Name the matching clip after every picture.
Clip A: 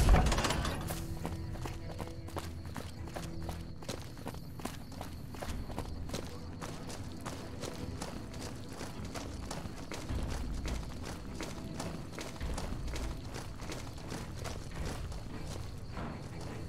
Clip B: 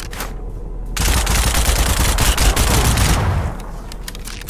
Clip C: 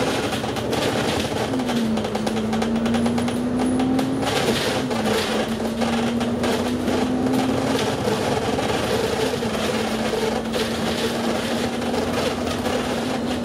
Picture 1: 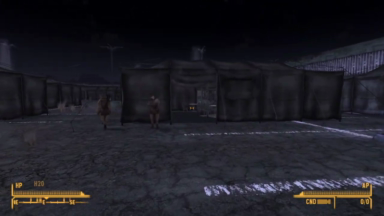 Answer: A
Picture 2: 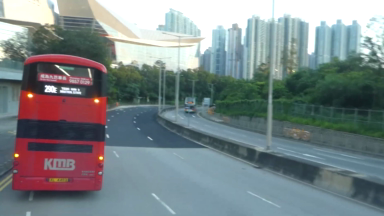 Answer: C